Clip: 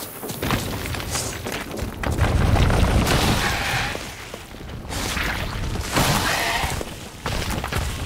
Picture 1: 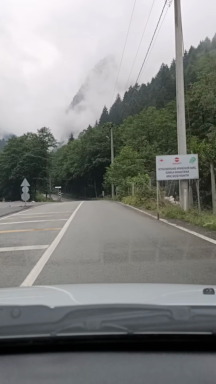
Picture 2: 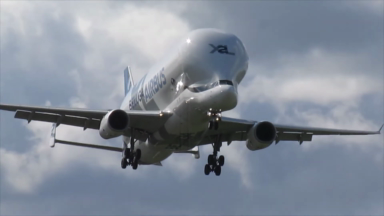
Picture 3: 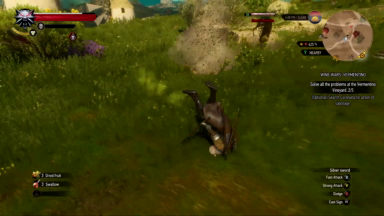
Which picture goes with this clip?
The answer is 3